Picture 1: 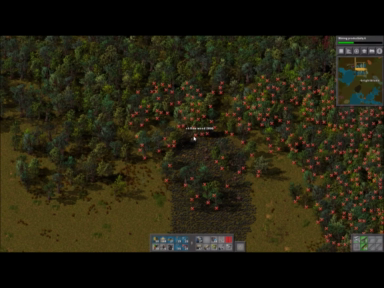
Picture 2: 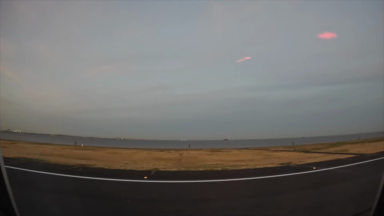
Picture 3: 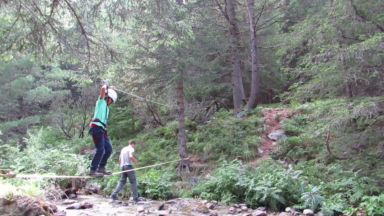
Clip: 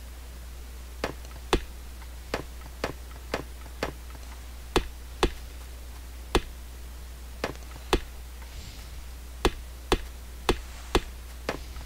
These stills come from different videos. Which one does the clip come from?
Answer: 1